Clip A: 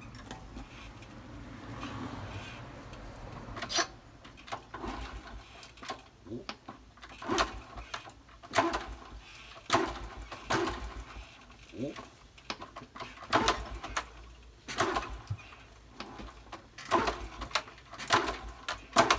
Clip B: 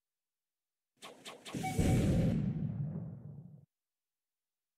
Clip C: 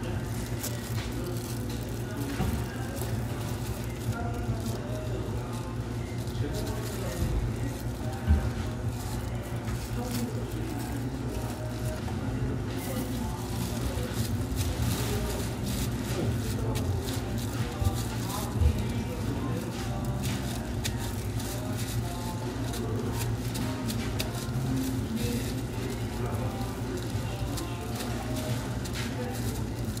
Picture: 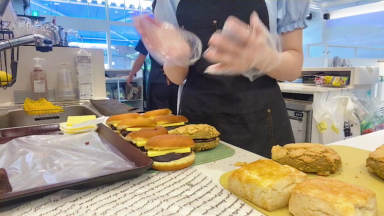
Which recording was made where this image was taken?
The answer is C